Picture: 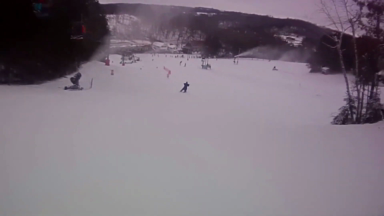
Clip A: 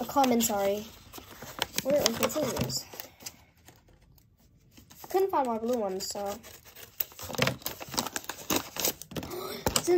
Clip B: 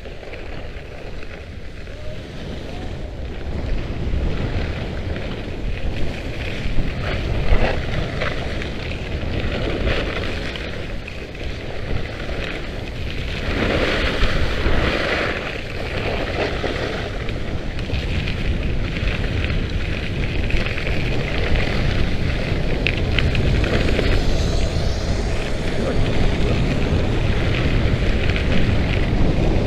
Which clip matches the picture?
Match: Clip B